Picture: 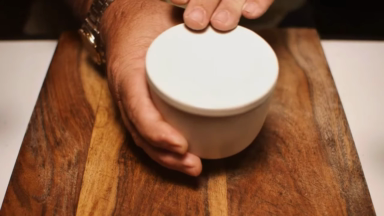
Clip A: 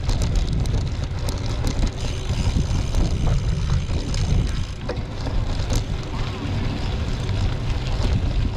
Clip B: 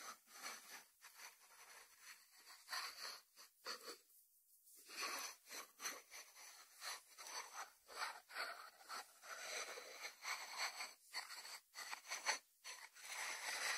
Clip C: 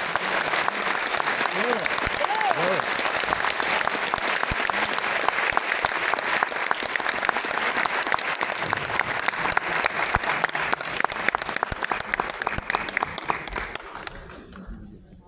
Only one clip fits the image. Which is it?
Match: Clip B